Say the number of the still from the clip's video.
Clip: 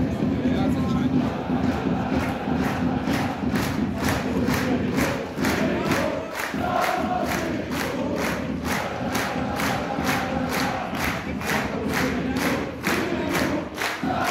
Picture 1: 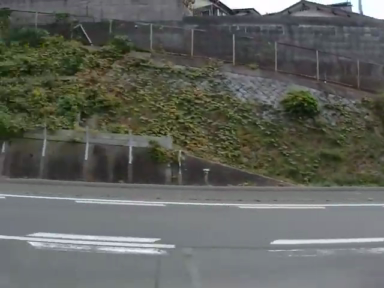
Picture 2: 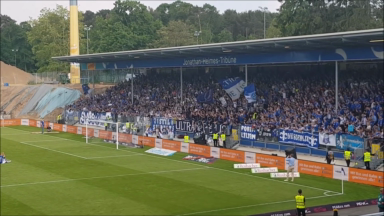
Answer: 2